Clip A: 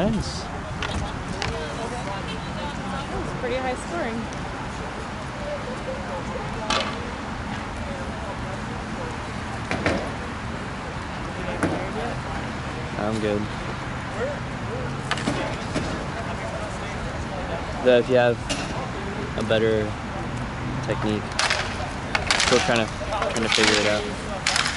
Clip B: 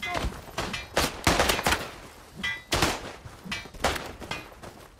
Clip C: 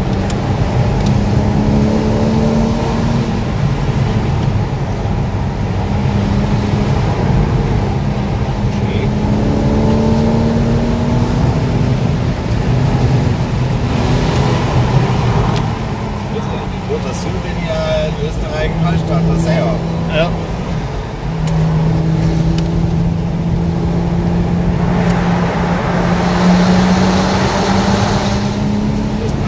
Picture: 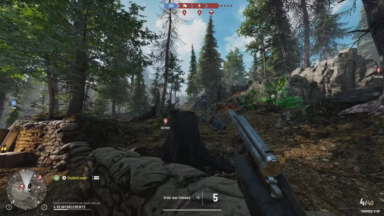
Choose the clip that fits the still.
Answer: B